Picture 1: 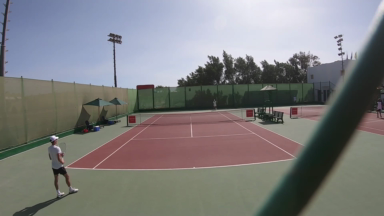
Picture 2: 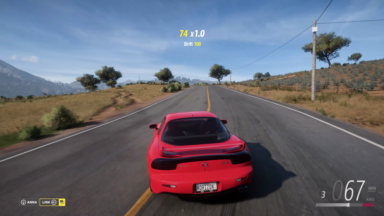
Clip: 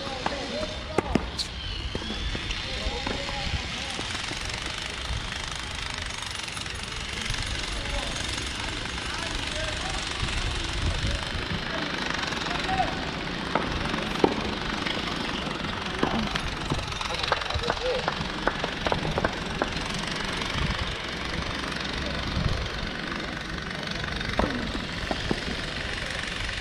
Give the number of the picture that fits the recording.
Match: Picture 1